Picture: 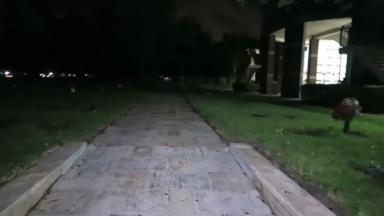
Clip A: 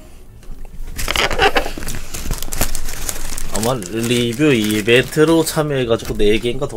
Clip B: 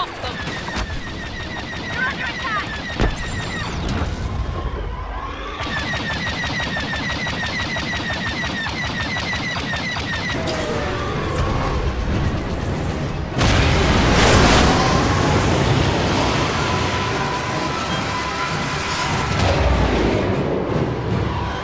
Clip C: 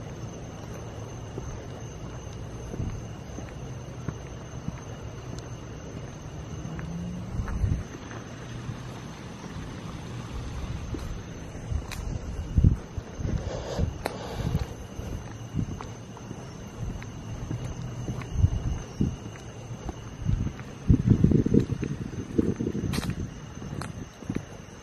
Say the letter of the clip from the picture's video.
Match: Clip C